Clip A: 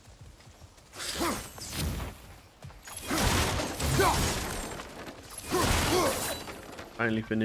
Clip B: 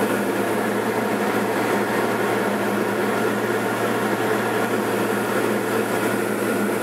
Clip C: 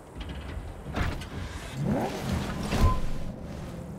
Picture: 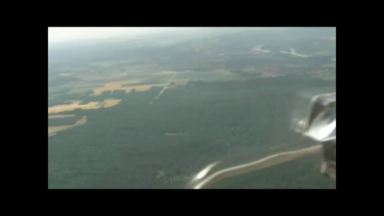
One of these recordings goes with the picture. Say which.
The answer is B